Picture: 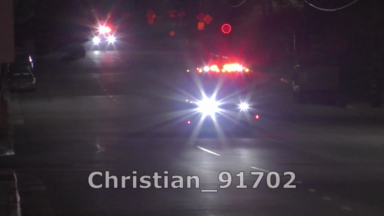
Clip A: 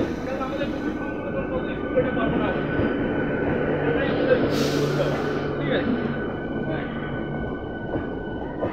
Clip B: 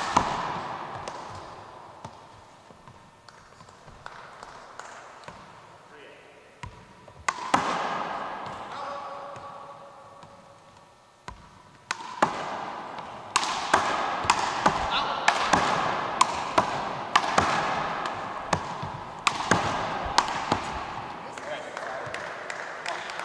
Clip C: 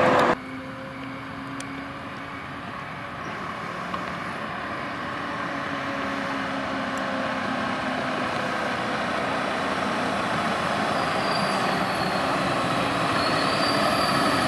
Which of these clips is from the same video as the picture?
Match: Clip C